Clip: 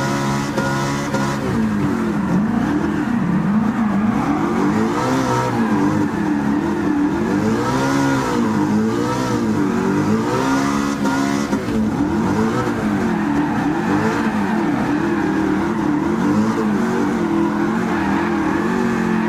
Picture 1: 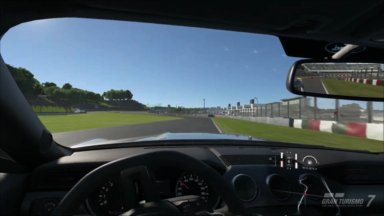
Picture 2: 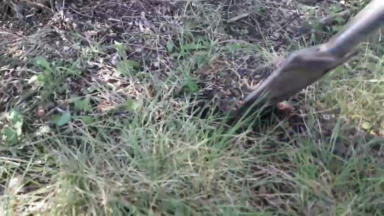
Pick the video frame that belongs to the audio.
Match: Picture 1